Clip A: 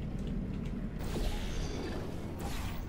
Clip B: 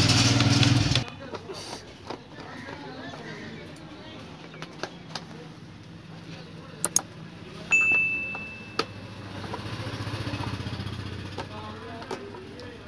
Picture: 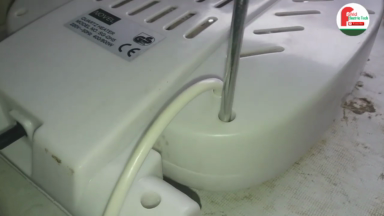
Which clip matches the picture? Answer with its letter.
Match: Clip B